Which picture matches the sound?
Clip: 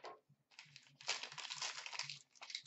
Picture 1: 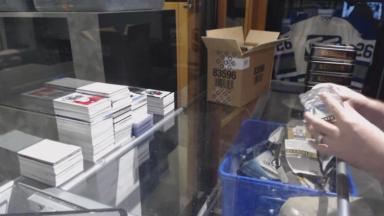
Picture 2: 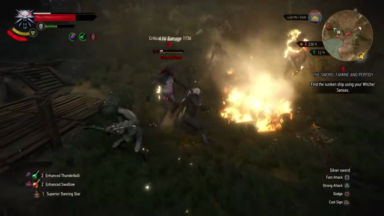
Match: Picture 1